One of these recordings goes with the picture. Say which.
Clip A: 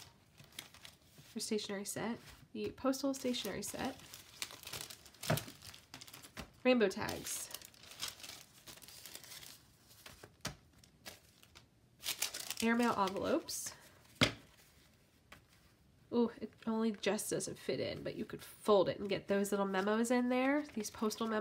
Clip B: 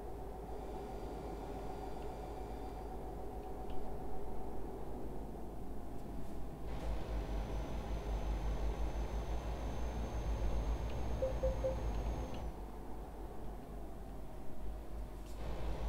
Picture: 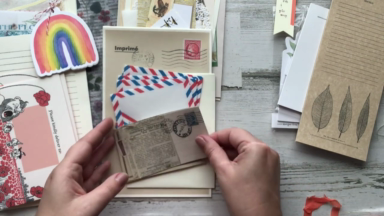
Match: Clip A